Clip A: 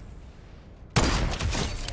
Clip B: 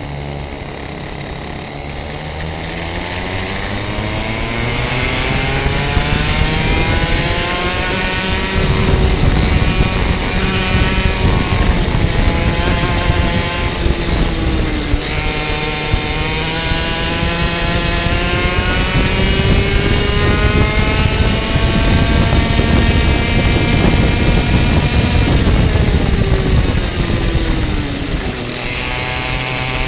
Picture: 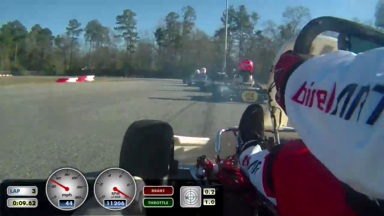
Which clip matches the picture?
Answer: B